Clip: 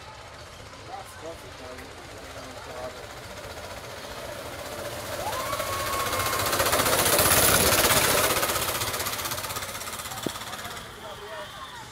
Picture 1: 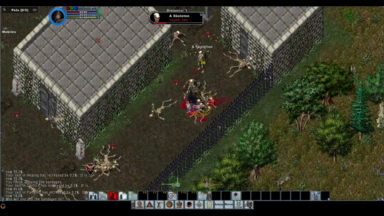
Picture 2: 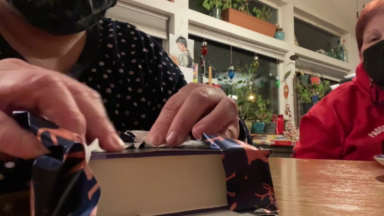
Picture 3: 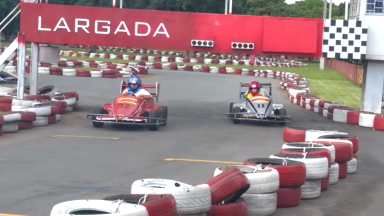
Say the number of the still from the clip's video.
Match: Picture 3